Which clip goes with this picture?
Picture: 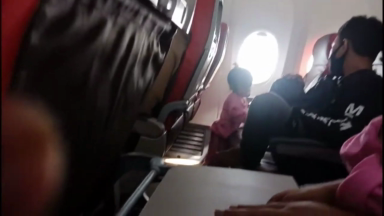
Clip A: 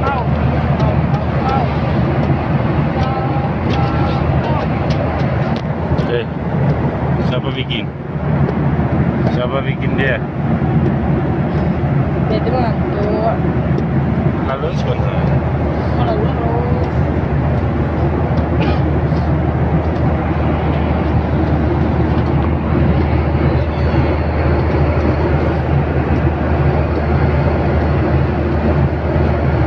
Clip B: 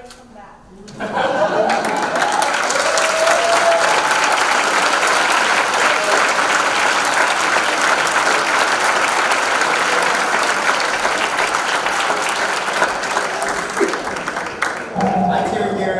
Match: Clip A